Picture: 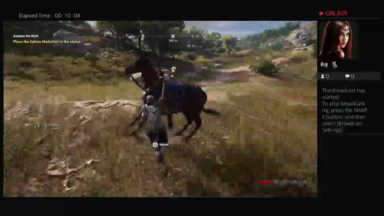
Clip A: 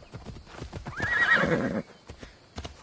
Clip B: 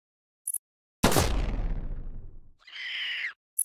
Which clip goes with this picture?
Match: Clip A